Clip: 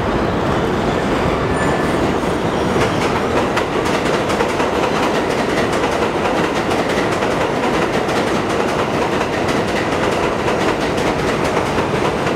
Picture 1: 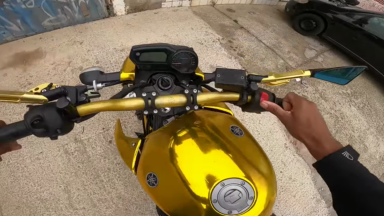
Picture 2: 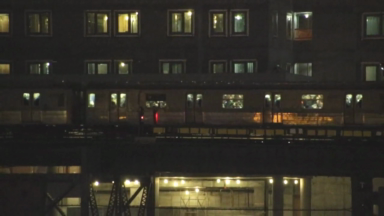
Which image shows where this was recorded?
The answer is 2